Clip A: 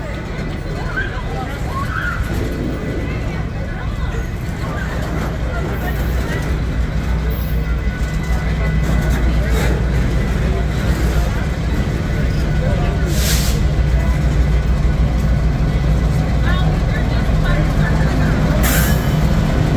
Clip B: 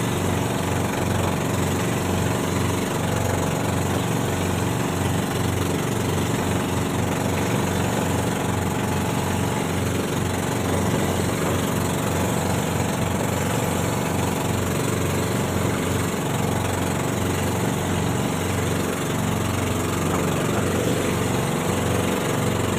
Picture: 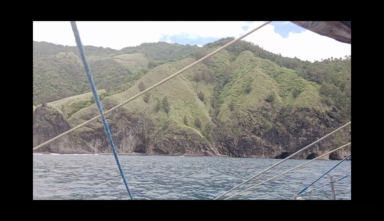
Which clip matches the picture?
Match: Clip B